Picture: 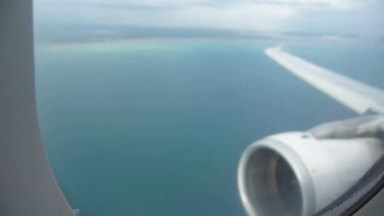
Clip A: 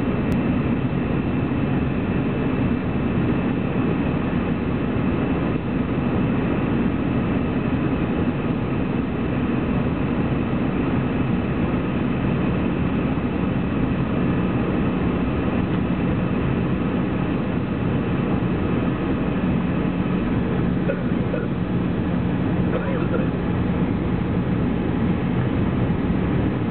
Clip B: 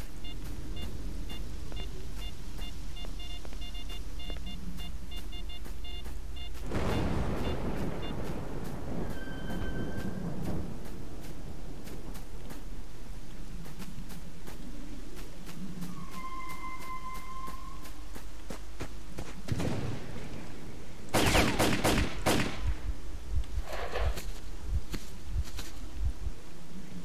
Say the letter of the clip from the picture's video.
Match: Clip A